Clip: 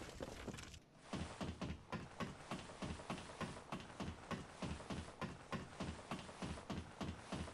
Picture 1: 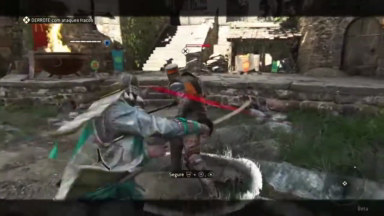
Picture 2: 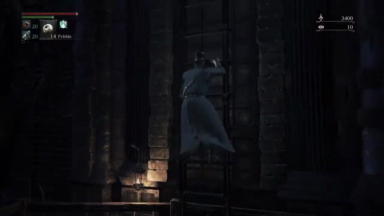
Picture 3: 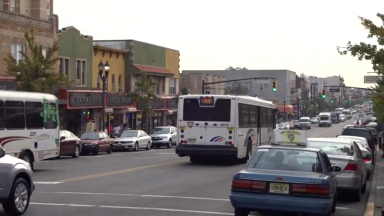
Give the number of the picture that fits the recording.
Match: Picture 2